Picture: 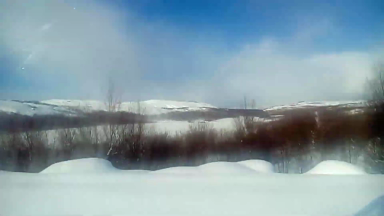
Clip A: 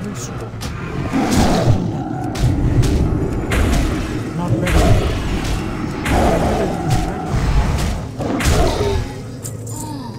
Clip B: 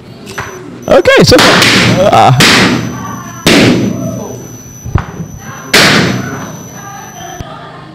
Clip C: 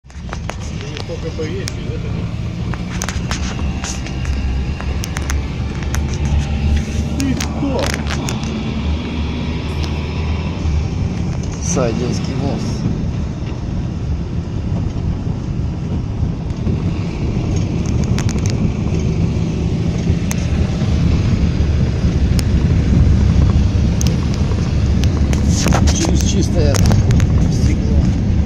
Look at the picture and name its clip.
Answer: C